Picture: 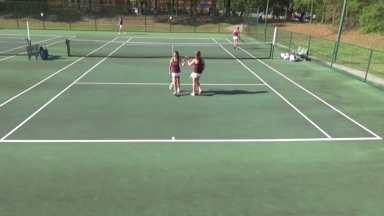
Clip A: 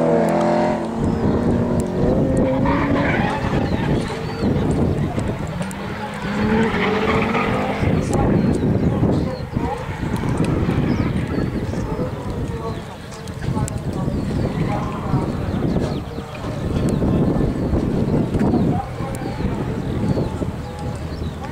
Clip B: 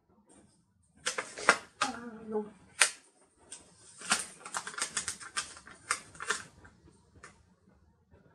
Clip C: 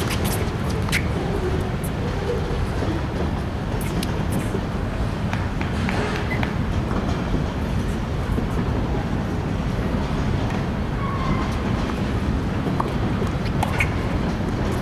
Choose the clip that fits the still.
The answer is C